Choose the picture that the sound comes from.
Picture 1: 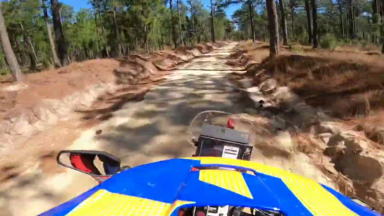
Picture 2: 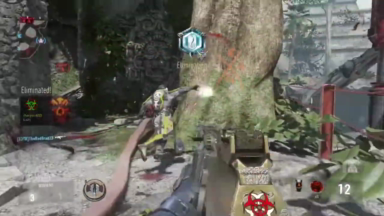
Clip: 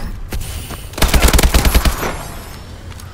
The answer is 2